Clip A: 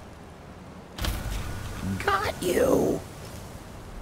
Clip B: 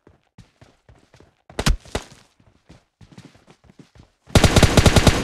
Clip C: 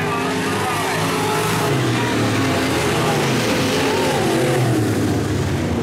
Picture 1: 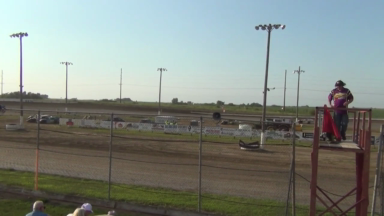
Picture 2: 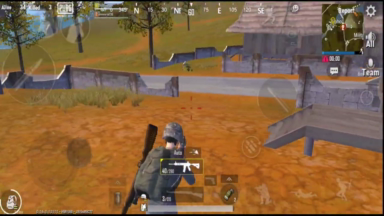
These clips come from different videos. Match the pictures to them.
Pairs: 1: C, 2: B